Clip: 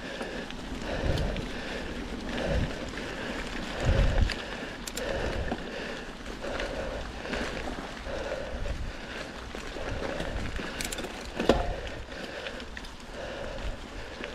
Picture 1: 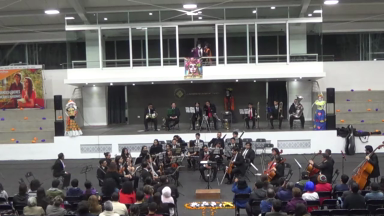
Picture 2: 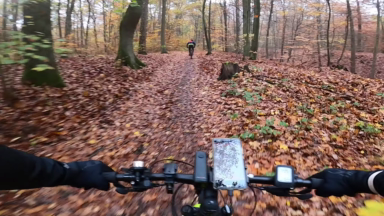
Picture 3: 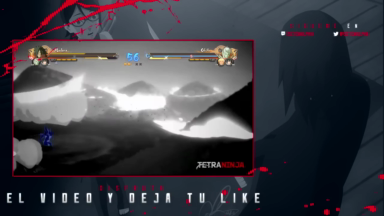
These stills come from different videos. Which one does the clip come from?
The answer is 2